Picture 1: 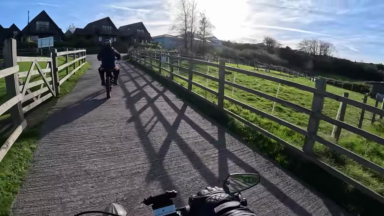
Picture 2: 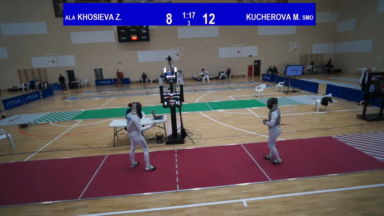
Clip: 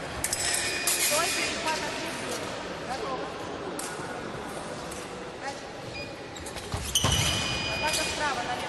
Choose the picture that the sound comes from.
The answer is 2